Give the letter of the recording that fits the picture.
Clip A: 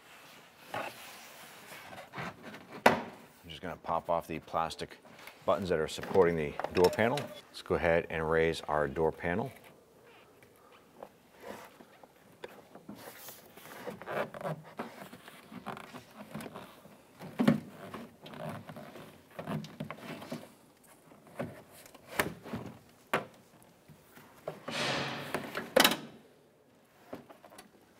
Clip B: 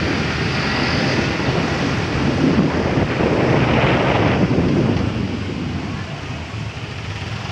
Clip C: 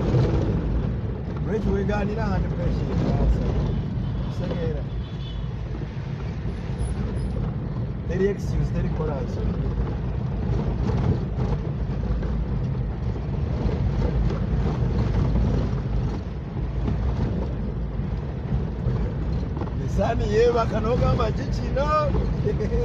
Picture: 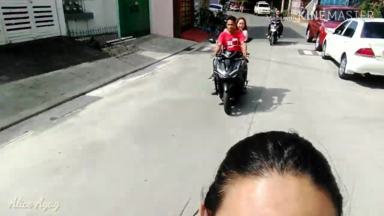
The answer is B